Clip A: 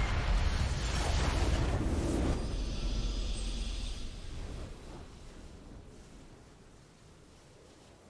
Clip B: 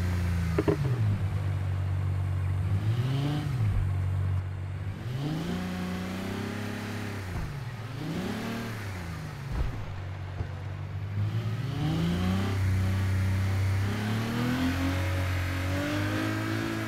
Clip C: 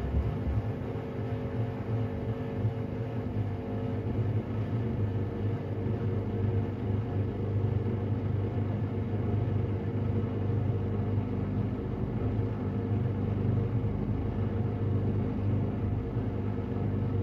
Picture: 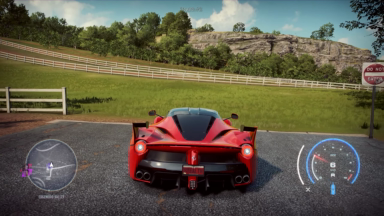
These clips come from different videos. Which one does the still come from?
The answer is B